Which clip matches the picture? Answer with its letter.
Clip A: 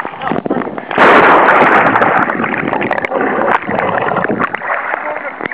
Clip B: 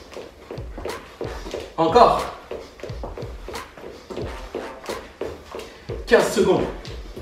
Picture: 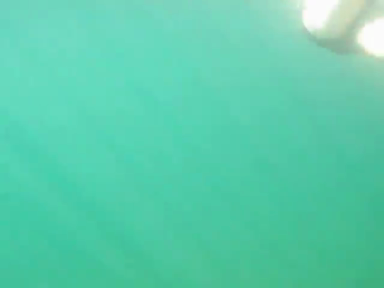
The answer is A